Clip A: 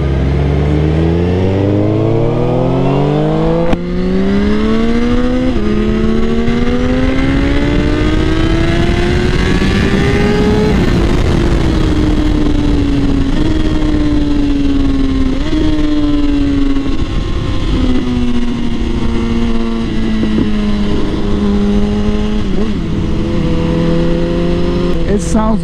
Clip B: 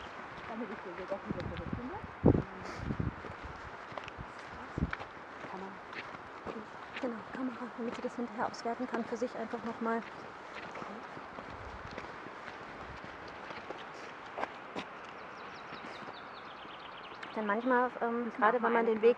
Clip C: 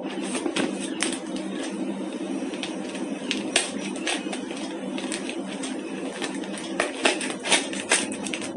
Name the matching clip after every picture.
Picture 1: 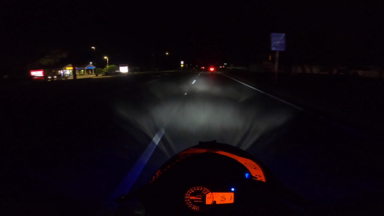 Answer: A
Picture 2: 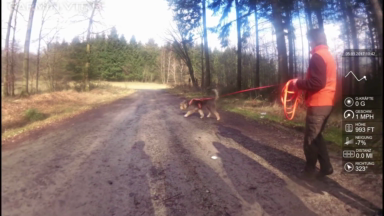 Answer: B